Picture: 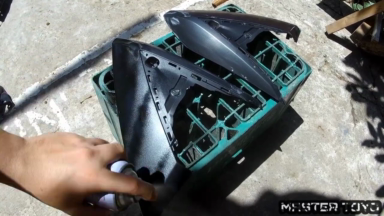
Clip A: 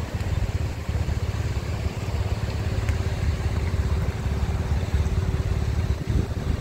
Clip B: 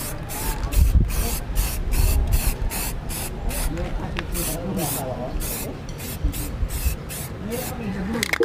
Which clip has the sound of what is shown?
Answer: B